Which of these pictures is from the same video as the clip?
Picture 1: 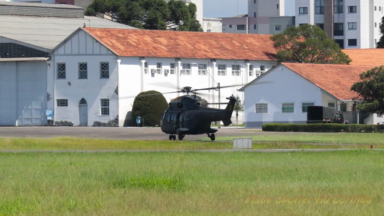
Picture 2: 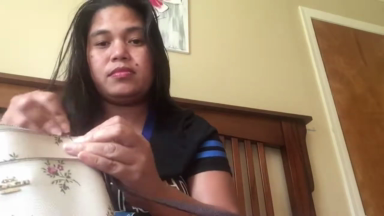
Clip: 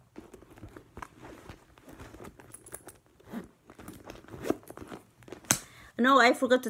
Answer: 2